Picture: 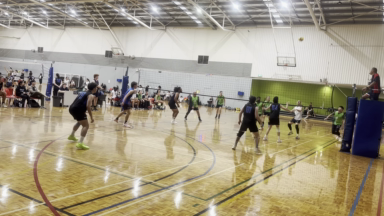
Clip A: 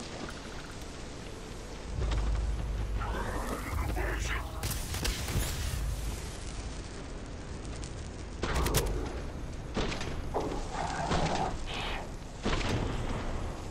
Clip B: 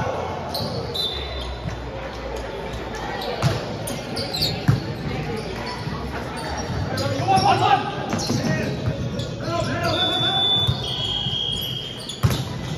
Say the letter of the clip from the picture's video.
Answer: B